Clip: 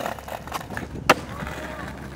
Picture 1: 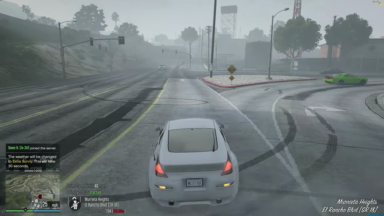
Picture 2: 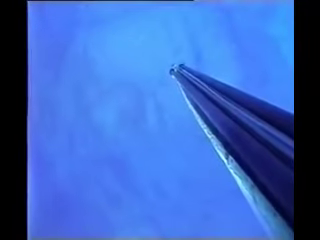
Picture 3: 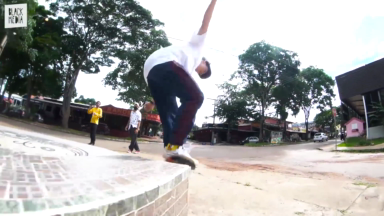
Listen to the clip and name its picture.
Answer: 3